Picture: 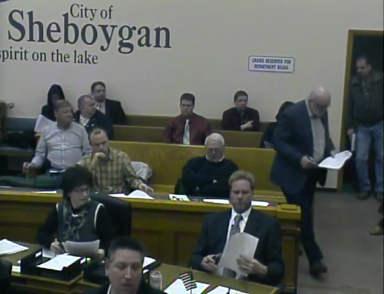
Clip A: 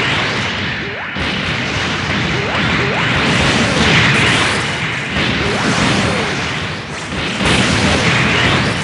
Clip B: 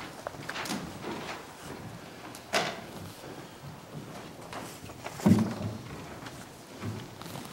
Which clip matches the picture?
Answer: B